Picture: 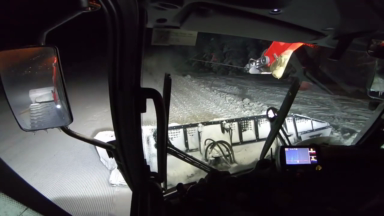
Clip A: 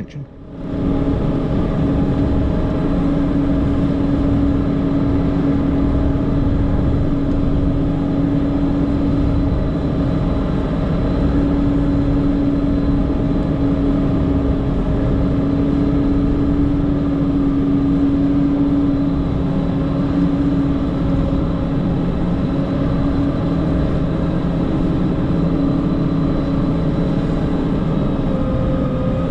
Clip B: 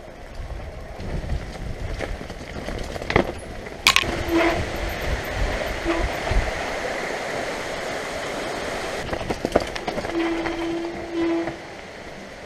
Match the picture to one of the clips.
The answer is A